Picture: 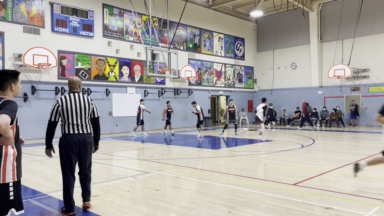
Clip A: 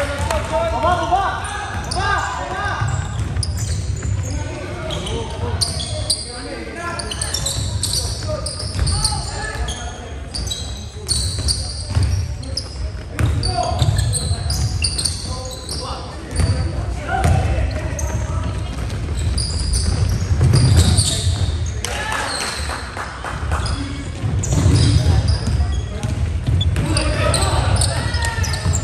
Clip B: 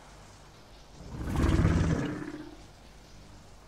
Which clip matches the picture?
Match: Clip A